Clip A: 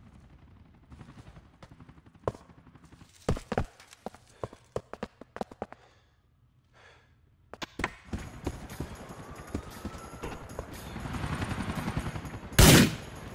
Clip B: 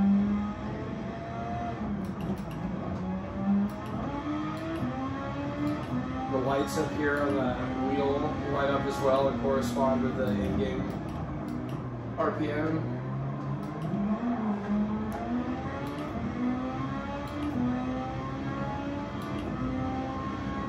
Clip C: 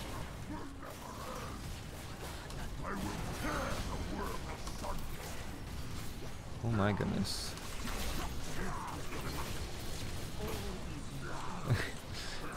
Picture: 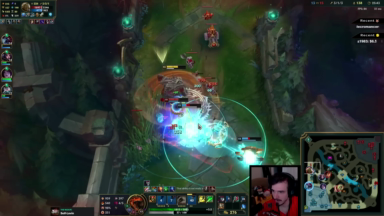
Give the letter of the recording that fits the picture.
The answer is C